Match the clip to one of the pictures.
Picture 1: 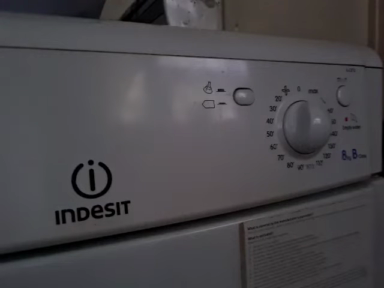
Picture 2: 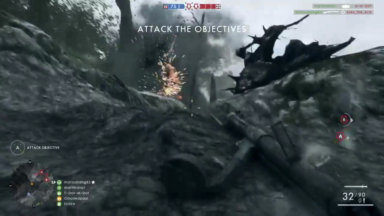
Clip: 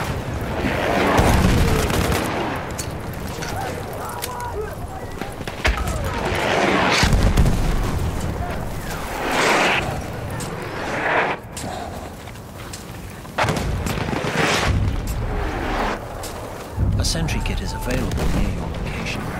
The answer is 2